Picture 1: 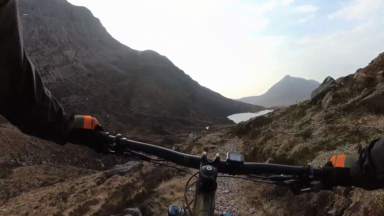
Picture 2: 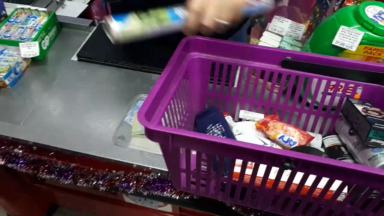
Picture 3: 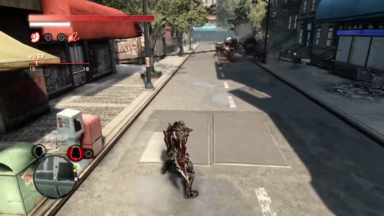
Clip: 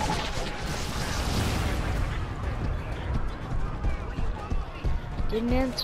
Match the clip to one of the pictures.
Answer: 3